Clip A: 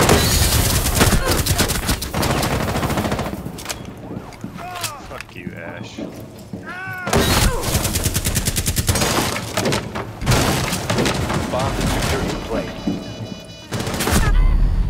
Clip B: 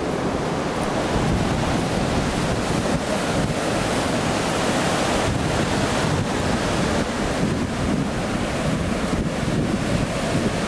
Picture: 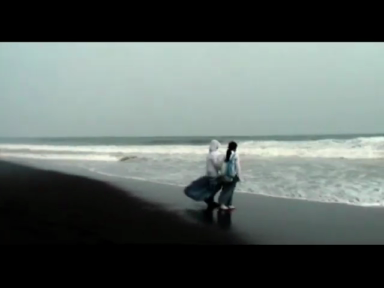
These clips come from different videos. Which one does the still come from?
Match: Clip B